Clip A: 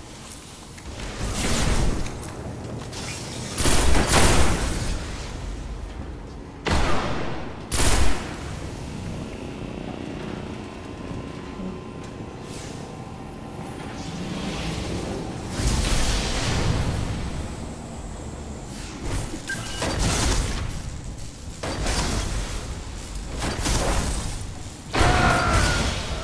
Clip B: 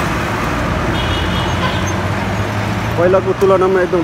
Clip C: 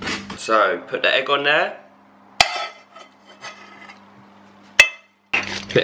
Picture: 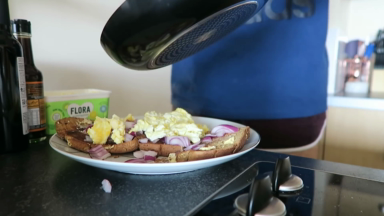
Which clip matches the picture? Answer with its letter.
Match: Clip C